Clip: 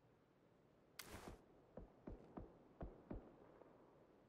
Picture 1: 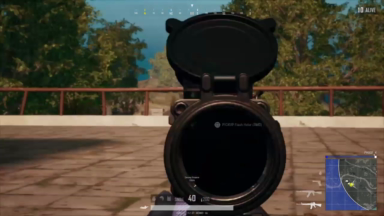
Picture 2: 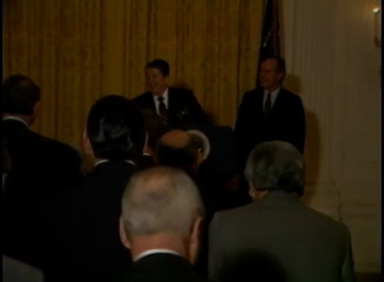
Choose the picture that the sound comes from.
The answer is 1